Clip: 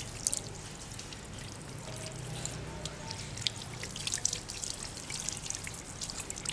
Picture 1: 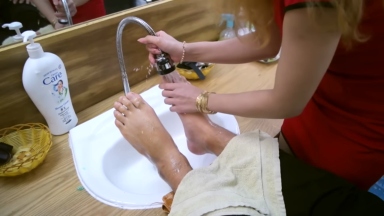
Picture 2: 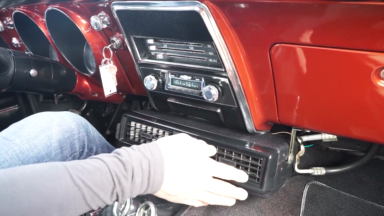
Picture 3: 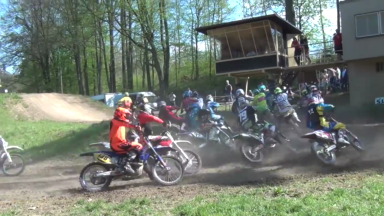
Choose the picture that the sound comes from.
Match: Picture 1